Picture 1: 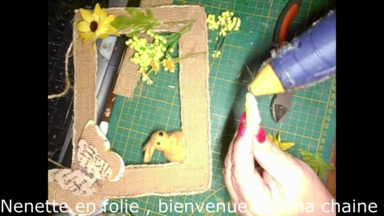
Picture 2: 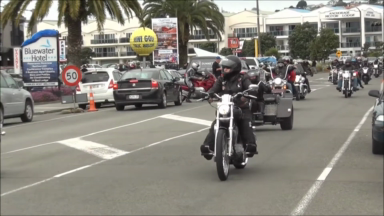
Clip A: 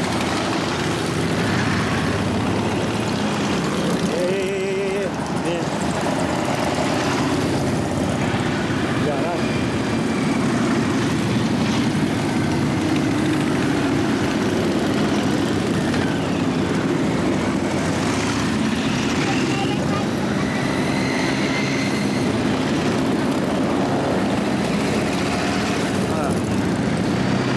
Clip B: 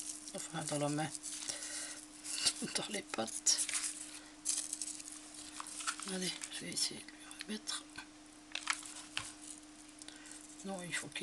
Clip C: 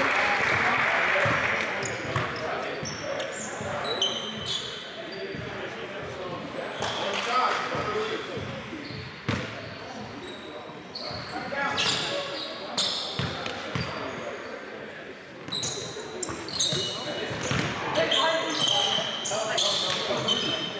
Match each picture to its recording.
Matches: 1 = B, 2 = A